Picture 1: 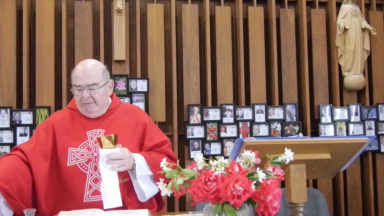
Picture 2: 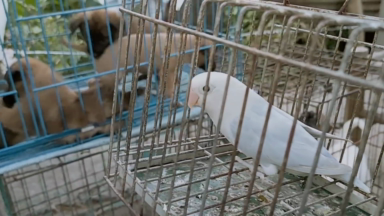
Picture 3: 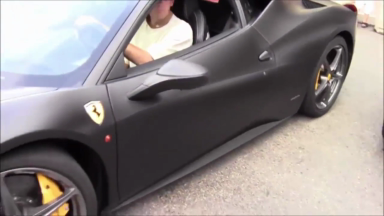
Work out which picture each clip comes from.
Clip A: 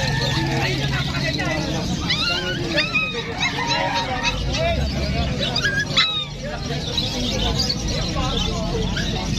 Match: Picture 2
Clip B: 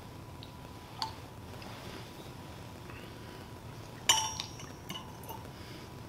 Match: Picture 1